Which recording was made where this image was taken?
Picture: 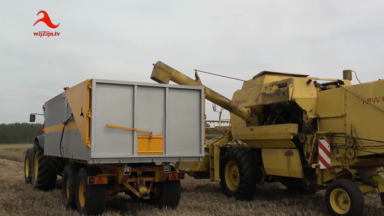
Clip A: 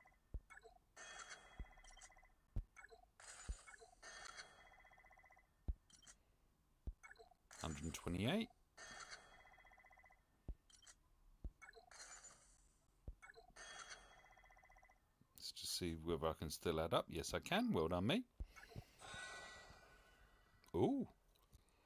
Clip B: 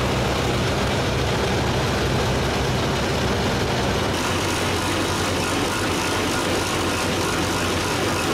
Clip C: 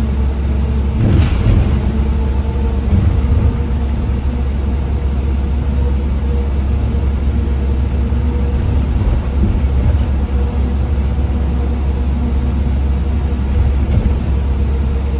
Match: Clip B